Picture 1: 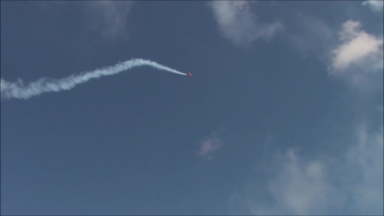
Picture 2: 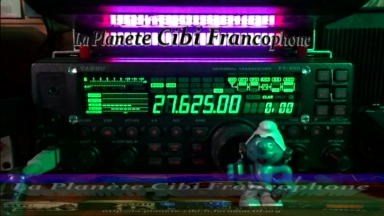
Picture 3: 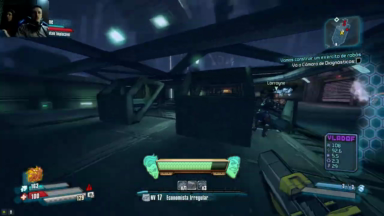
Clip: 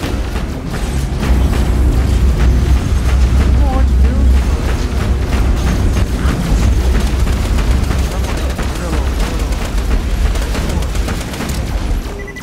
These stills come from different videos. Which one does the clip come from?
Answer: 3